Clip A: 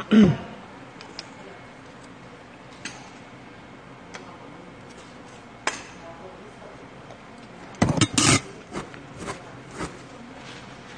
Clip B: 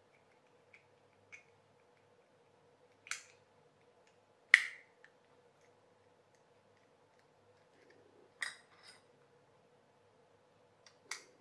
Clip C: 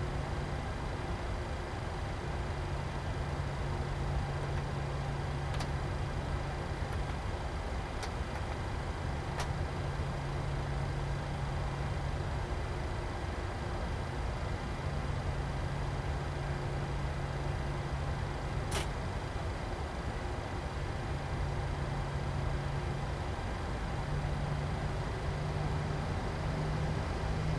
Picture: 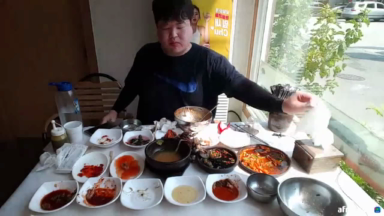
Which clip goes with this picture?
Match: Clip A